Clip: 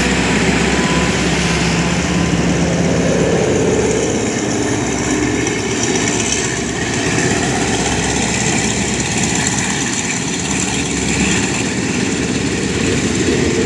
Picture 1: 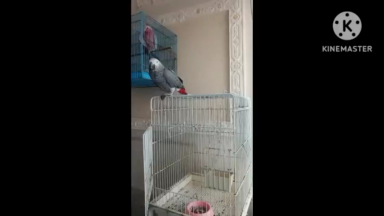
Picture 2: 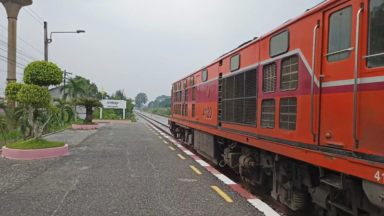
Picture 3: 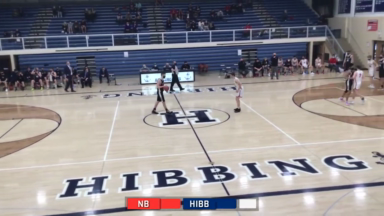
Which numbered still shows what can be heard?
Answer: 2